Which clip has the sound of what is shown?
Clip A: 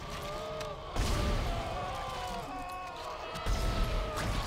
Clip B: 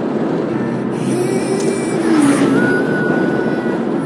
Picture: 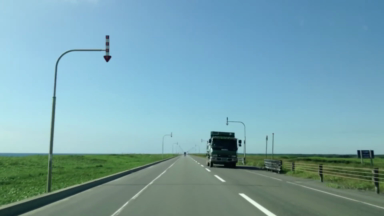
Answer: B